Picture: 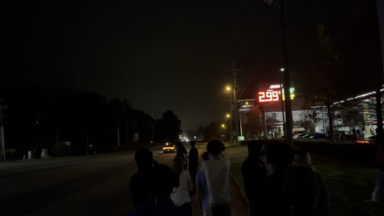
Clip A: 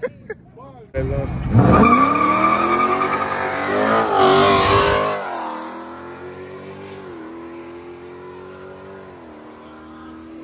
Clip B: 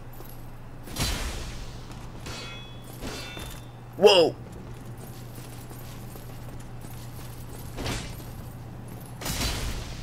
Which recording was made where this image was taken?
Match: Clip A